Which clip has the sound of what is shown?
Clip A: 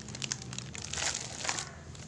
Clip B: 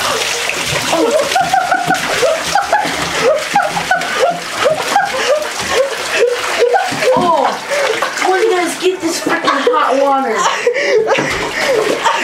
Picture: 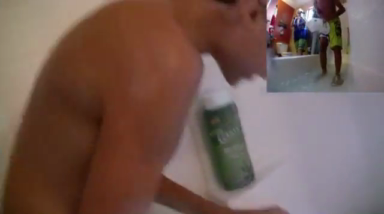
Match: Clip B